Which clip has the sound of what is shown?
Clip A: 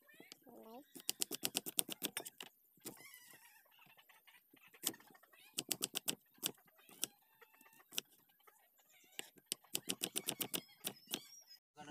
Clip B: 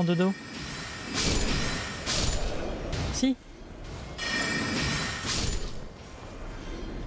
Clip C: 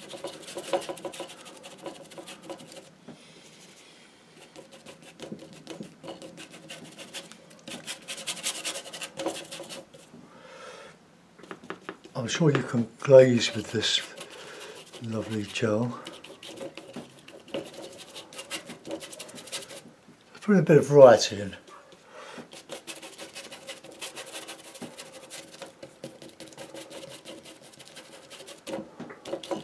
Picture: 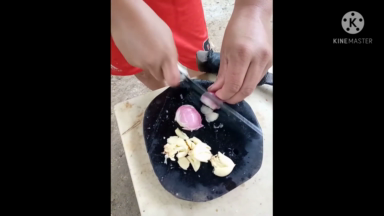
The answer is A